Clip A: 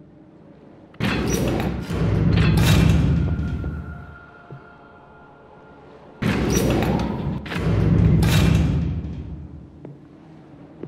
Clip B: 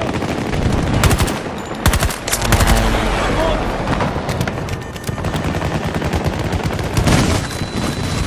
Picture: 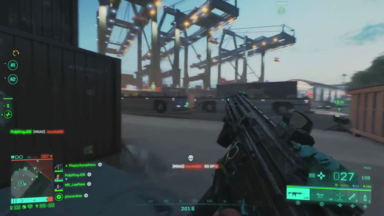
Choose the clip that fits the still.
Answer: B